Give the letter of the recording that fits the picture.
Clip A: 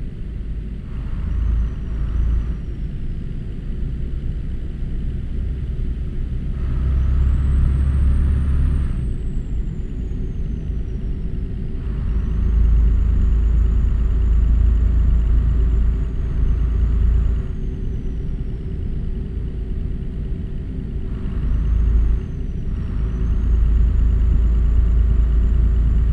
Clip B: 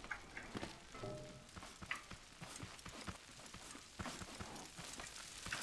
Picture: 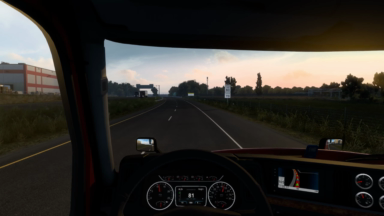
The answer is A